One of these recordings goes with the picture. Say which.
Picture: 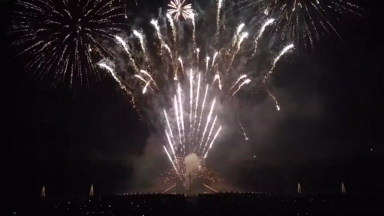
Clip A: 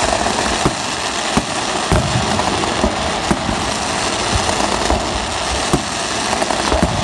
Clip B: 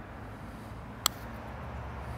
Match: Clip A